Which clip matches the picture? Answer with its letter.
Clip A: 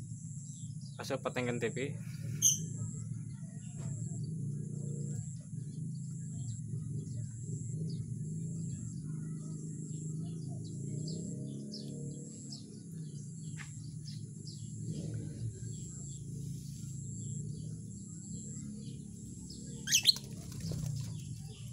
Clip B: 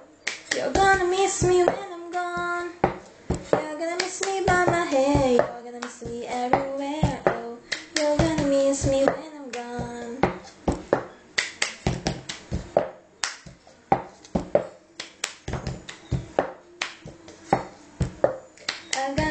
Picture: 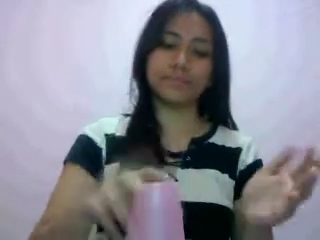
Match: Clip B